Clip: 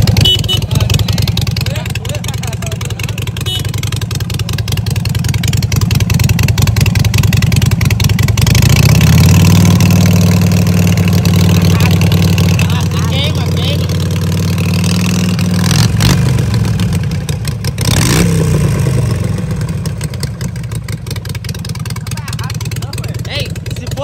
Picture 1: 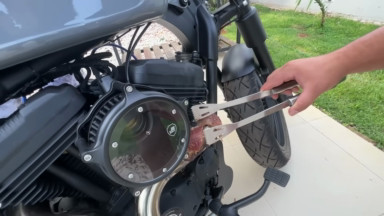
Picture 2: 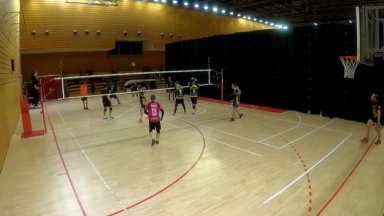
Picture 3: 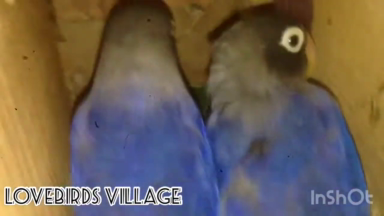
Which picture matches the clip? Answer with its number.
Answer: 1